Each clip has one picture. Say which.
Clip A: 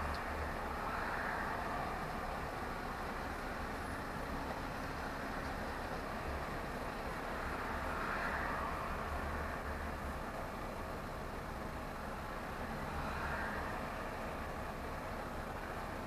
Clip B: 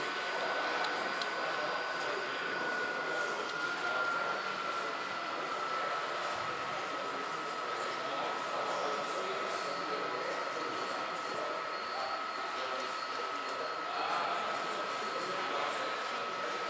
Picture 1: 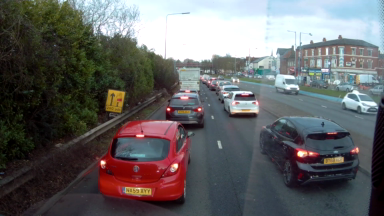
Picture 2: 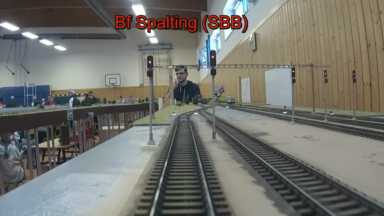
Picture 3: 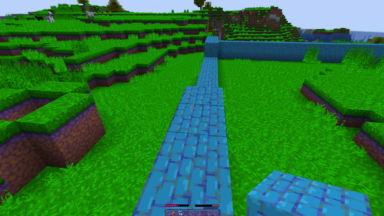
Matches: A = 1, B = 2